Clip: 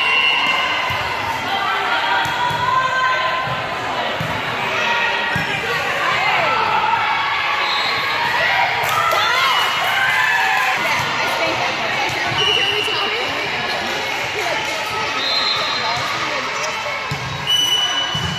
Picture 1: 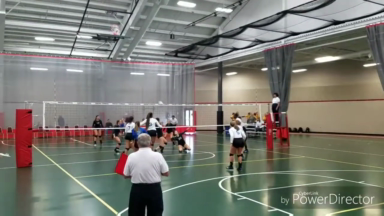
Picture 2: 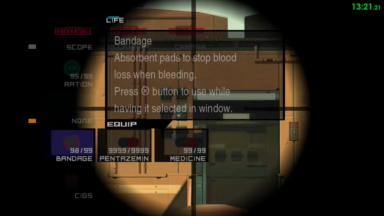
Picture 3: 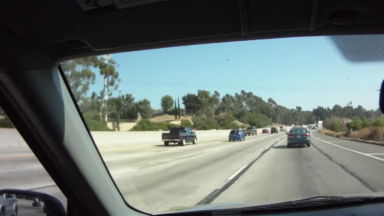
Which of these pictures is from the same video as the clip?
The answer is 1